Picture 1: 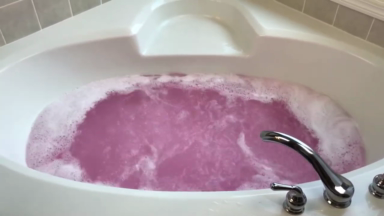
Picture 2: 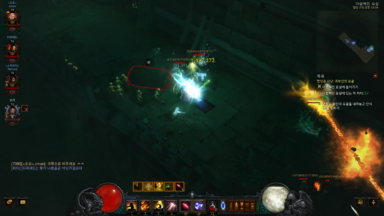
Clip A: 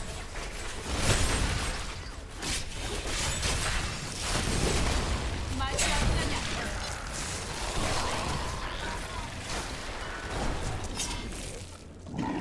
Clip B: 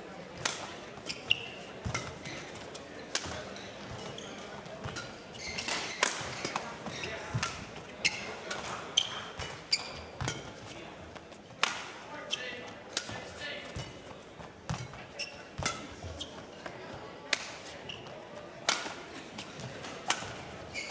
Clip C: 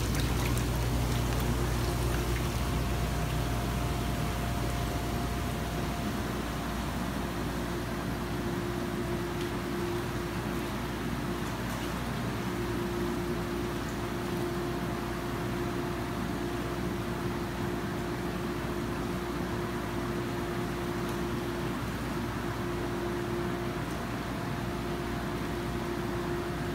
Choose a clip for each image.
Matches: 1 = C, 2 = A